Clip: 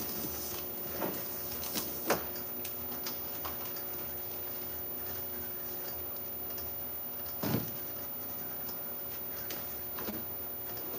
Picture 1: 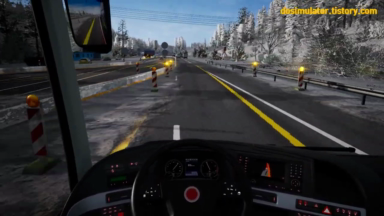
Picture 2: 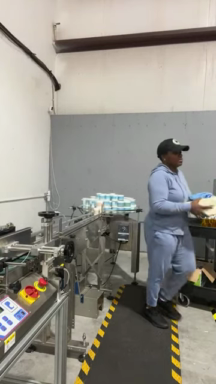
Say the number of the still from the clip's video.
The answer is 2